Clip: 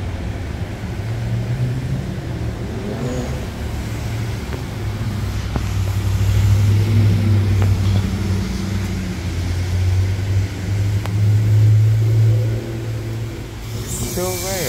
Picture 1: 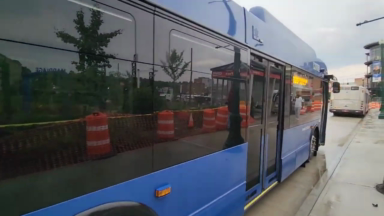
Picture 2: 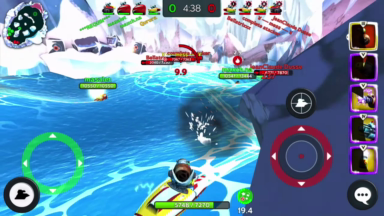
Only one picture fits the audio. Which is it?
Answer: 1